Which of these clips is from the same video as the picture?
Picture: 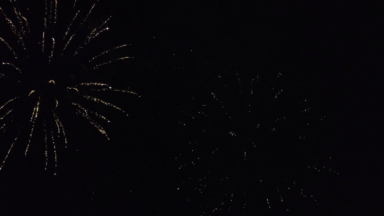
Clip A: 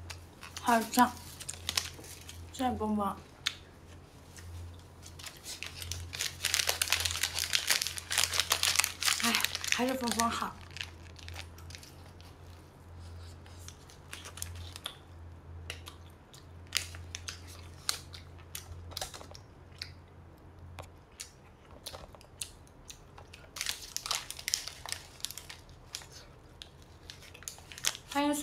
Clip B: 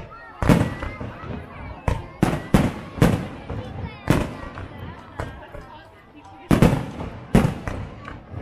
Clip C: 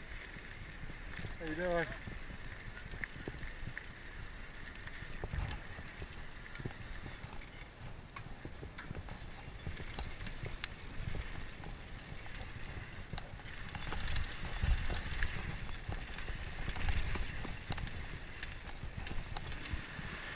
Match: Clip B